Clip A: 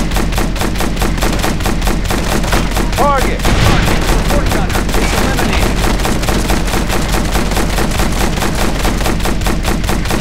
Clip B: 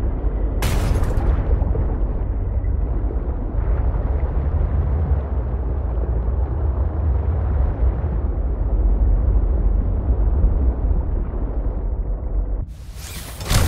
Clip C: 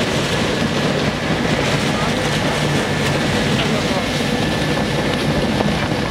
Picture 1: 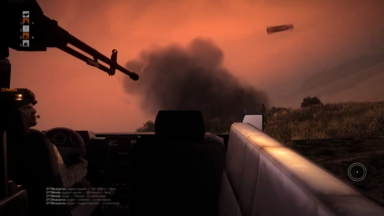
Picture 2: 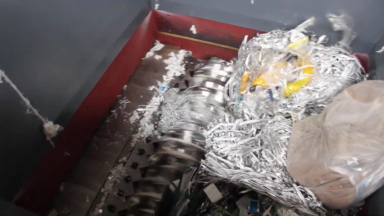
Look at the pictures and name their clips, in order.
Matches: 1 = A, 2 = C